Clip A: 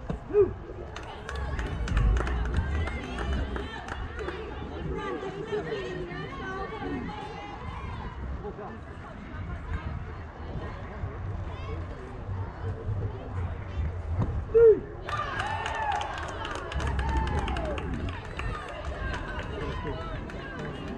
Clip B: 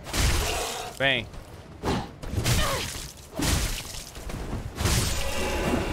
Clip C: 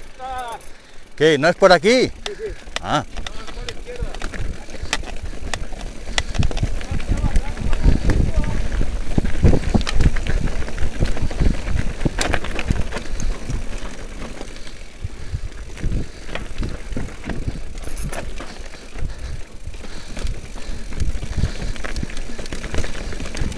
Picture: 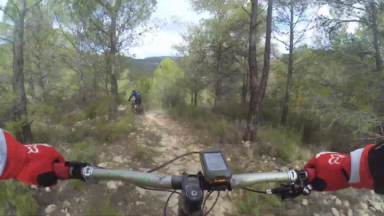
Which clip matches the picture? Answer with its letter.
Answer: C